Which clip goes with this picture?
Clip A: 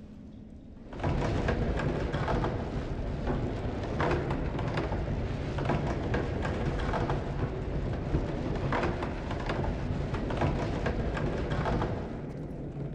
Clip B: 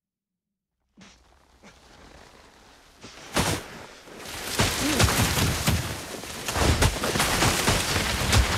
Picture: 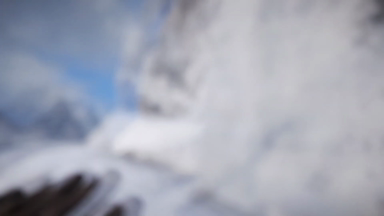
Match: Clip B